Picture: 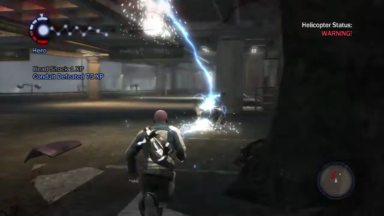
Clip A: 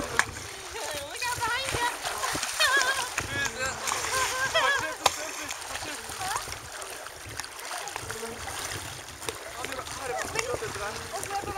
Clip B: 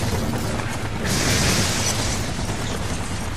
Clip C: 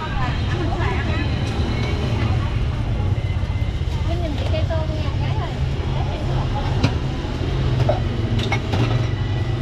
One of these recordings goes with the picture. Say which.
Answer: B